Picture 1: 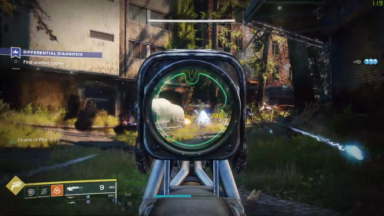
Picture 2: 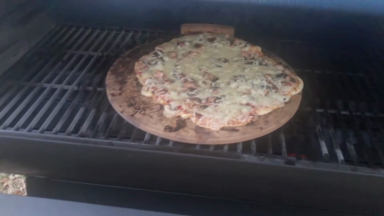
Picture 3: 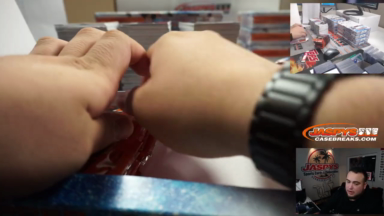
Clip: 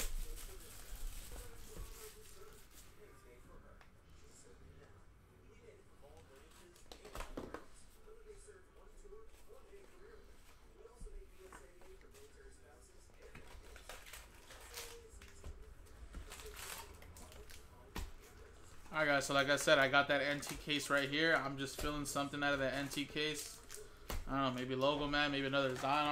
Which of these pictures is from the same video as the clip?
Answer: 3